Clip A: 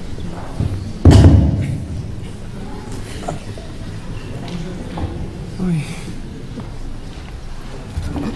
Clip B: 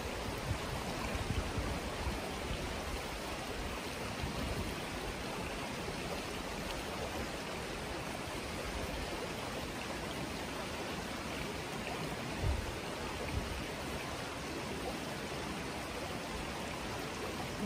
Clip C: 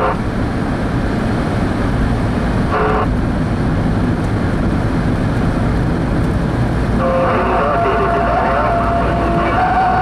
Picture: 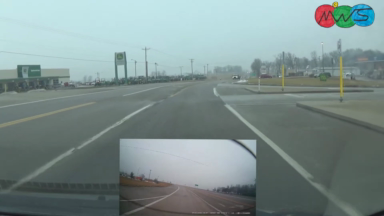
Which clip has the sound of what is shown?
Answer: C